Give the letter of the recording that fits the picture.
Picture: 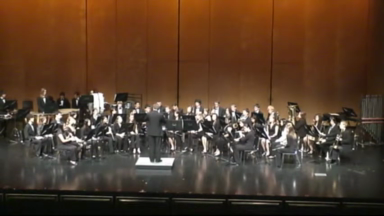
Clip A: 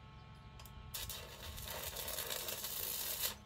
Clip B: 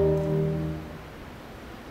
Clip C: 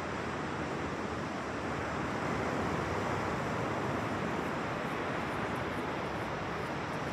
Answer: B